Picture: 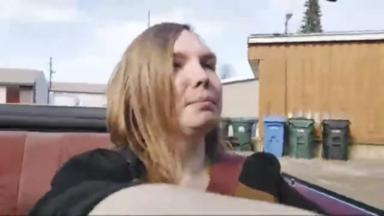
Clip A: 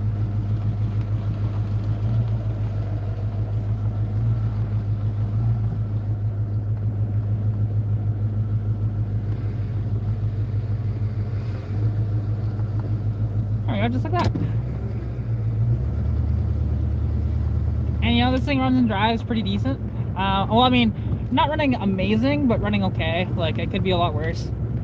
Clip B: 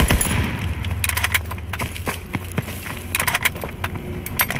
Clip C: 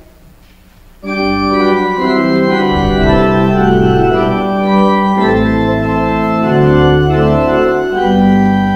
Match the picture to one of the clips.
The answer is A